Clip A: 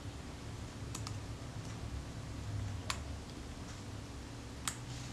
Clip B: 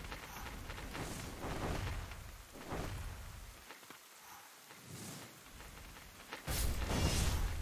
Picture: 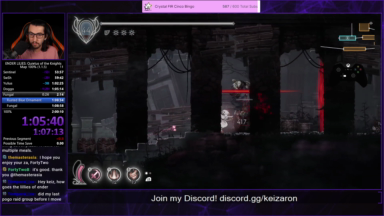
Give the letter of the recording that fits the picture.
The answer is B